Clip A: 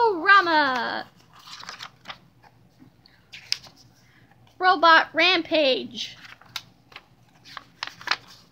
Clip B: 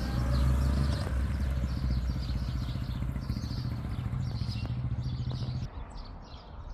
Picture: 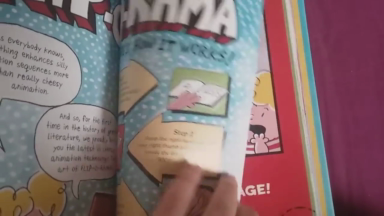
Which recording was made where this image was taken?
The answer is A